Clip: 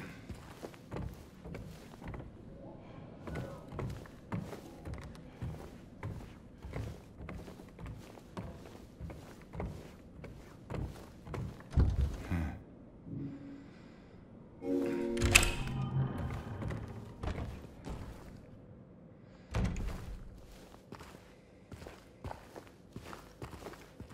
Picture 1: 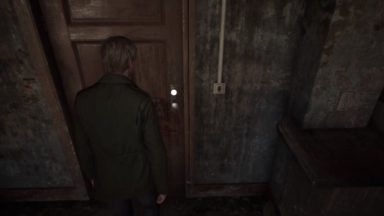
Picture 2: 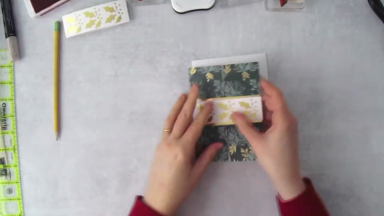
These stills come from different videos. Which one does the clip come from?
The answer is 1